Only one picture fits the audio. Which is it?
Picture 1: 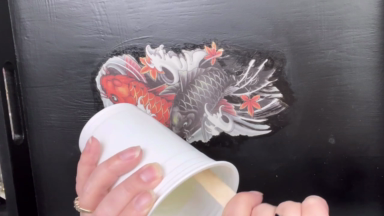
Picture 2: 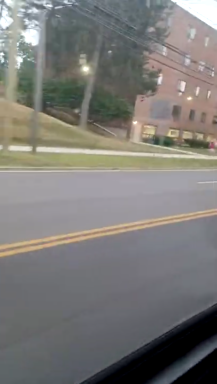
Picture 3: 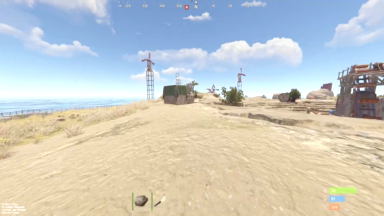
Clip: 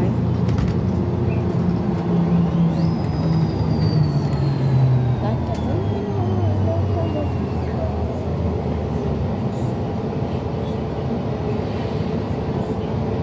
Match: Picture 2